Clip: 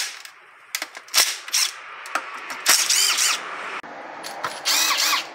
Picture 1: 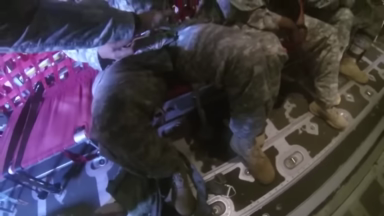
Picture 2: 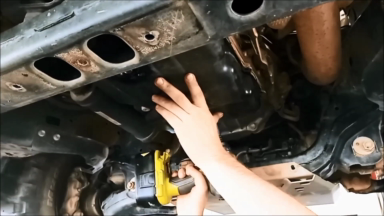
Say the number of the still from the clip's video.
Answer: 2